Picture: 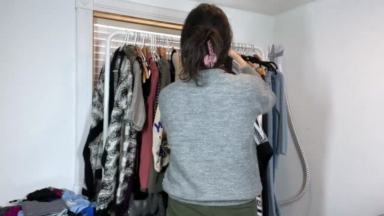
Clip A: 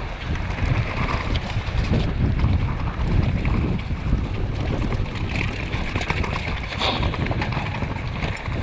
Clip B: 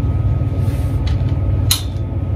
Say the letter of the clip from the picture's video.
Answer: B